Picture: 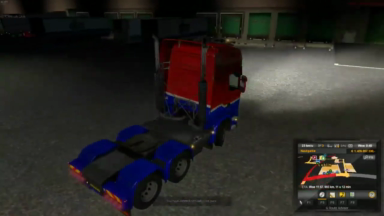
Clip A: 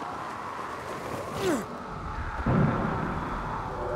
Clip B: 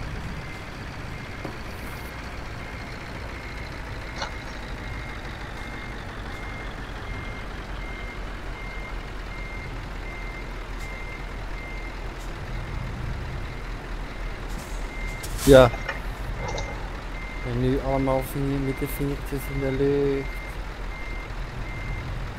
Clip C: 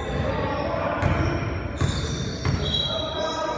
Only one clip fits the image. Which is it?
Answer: B